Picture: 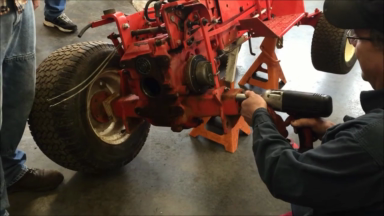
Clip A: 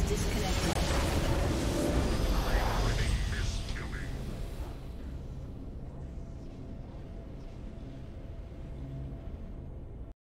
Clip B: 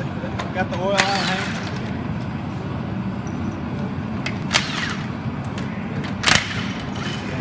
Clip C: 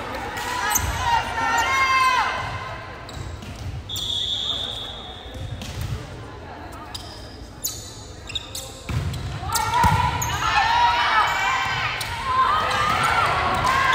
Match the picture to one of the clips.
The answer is B